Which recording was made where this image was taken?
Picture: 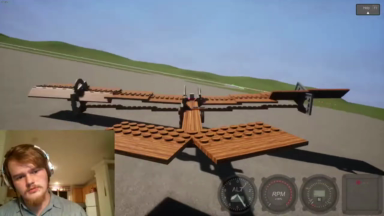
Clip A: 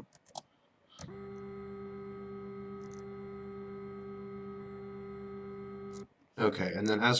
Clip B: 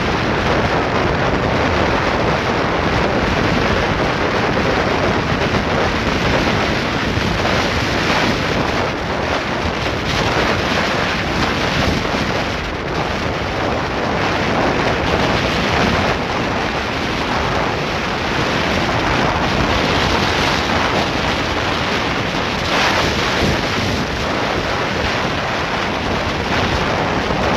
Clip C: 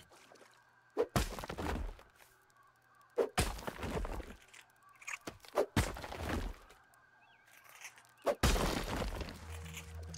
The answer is A